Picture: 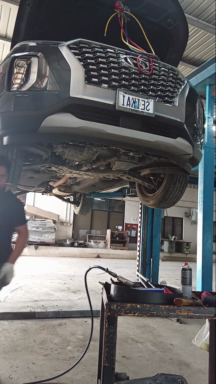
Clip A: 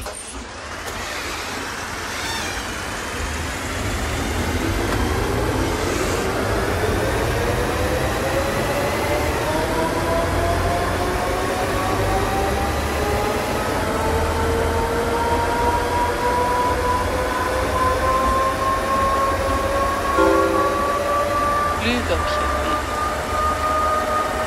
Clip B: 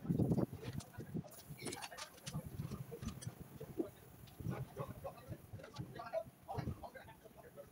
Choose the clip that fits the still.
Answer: B